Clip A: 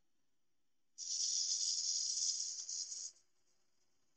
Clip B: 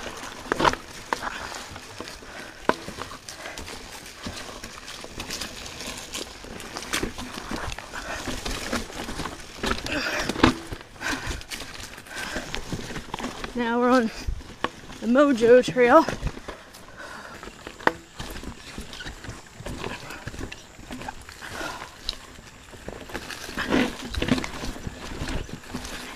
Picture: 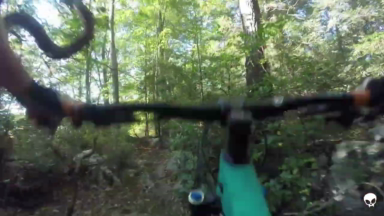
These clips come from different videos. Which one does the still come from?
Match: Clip B